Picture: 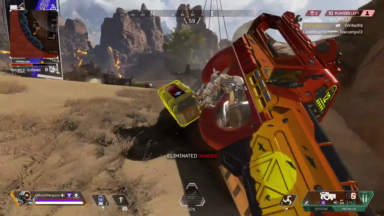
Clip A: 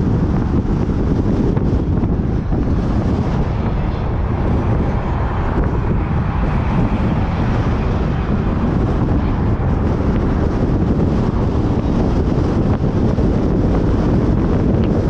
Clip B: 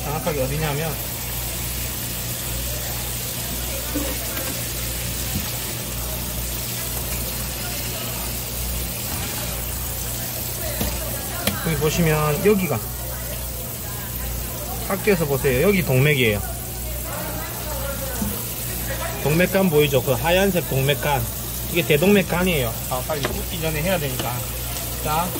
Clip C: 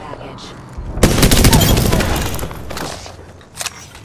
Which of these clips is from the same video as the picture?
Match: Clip C